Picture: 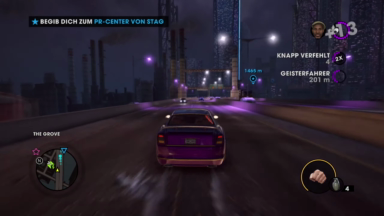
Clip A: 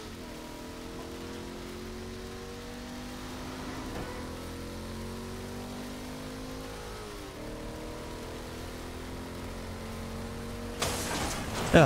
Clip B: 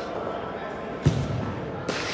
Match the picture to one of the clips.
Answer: A